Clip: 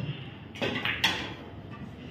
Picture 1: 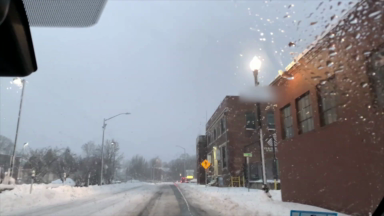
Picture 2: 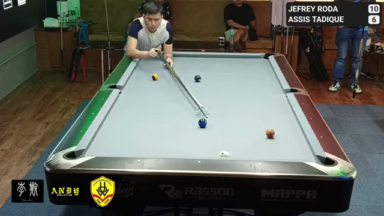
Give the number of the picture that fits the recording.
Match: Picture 2